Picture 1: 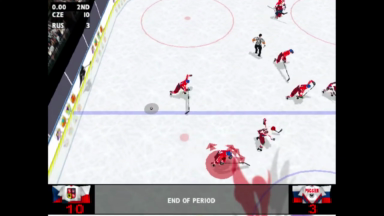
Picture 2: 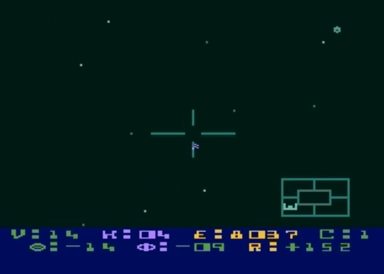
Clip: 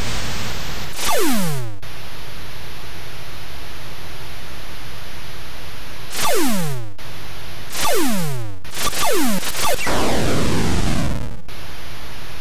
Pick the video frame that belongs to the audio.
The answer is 2